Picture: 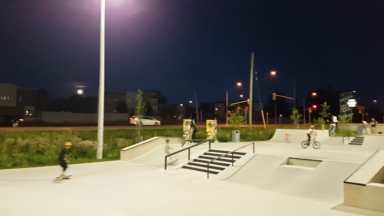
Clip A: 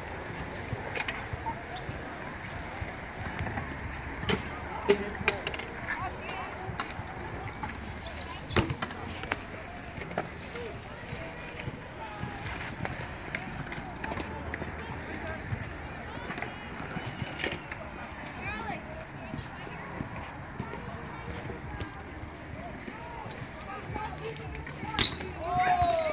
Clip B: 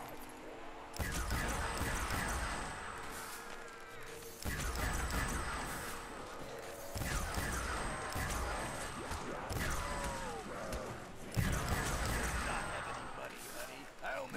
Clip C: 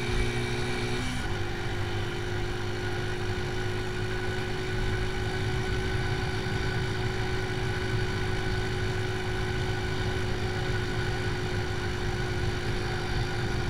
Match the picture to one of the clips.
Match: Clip A